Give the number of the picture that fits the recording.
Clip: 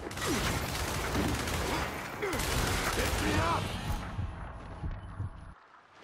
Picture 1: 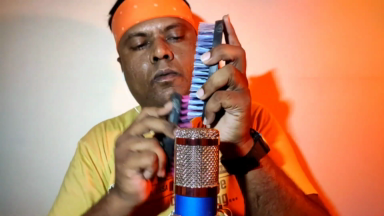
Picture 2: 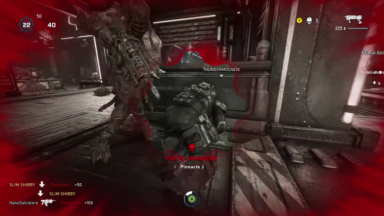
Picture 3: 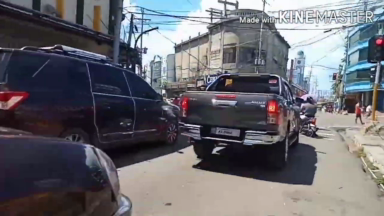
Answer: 2